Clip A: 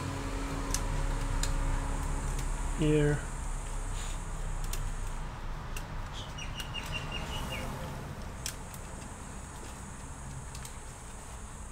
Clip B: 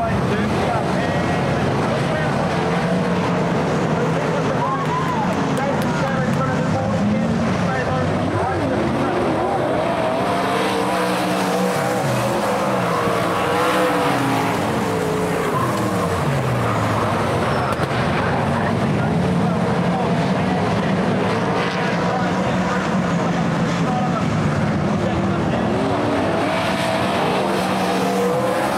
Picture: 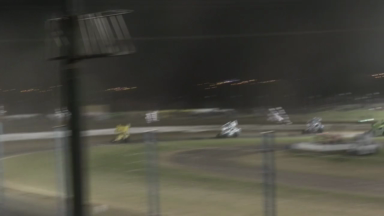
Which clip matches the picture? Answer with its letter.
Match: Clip B